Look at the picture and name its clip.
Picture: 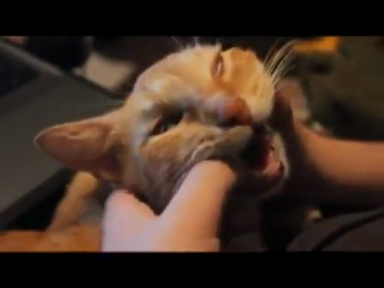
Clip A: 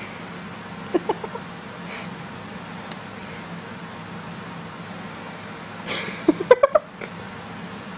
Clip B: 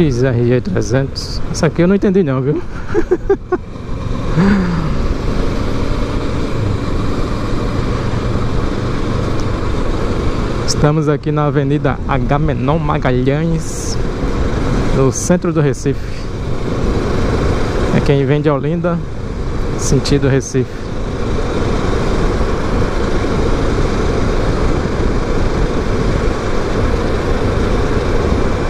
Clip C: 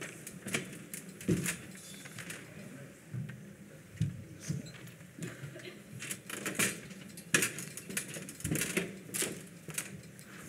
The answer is A